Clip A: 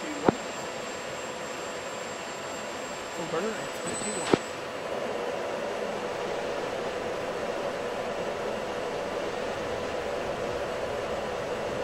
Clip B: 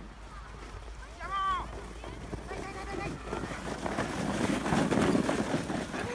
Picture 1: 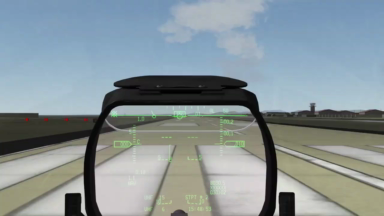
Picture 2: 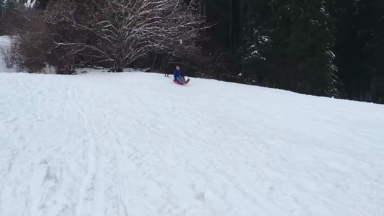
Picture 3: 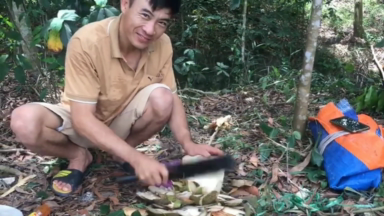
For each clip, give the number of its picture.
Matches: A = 1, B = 2